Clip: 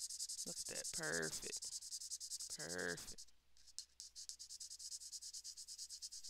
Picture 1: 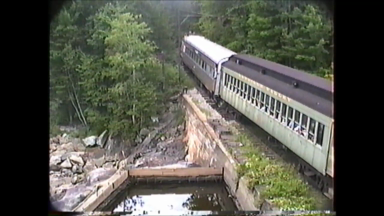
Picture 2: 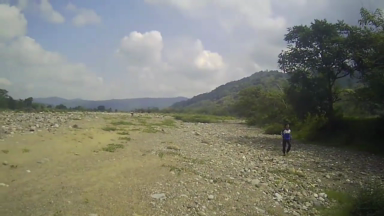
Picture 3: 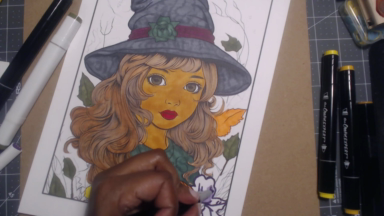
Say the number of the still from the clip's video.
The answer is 3